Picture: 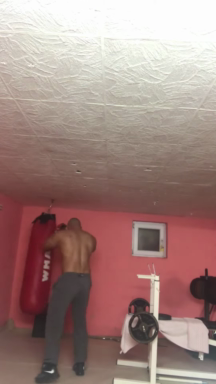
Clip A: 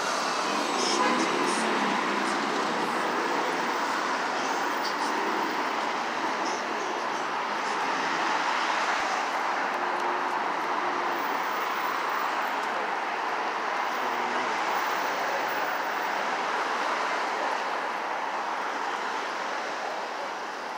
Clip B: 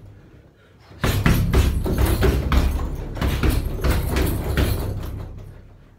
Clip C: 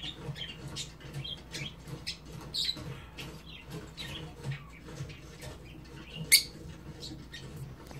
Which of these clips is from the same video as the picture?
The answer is B